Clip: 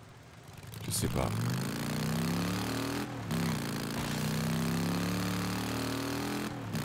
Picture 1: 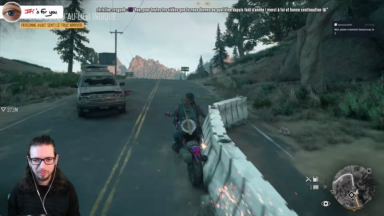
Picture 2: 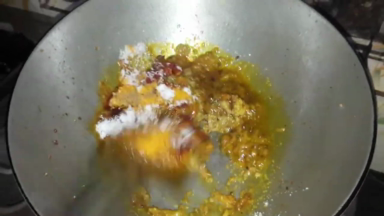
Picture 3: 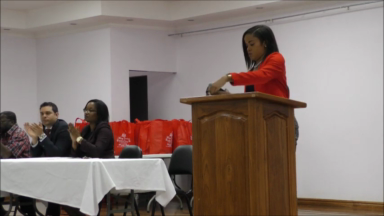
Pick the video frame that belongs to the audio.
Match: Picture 1